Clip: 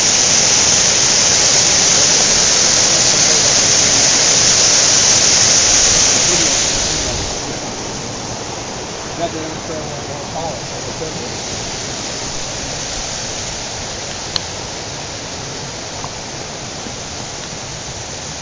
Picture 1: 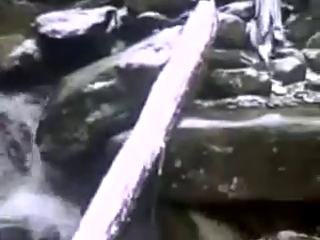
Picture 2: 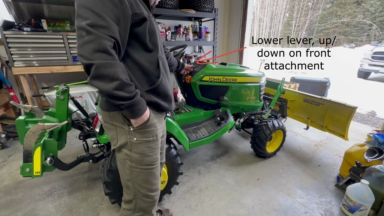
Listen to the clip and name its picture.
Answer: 1